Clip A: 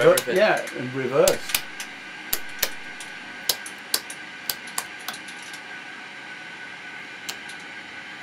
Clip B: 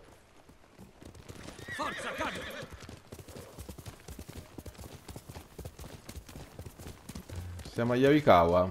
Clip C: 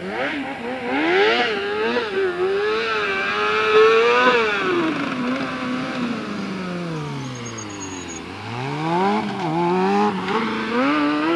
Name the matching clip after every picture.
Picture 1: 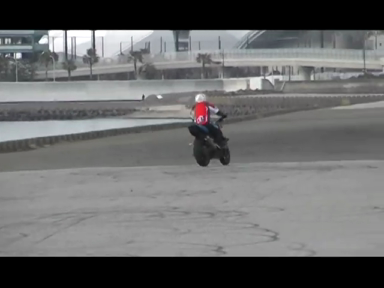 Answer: C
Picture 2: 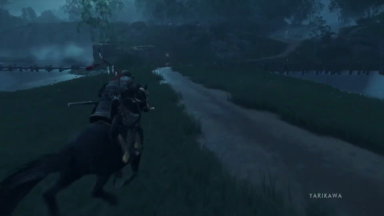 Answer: B